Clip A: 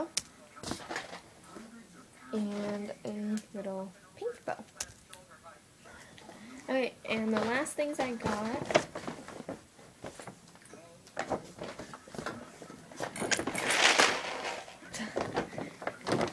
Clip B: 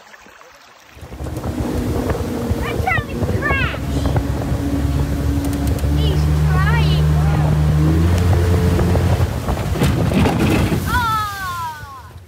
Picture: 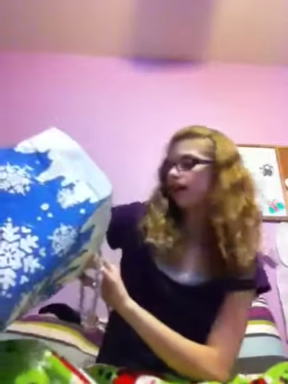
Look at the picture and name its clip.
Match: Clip A